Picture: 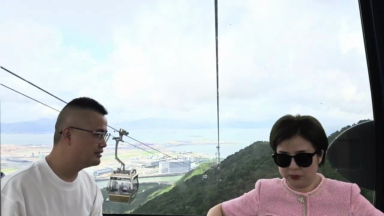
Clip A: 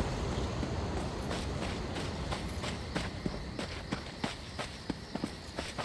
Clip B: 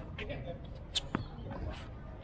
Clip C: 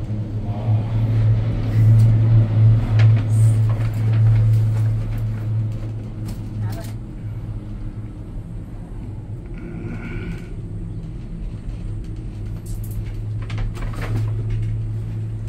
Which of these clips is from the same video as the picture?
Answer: C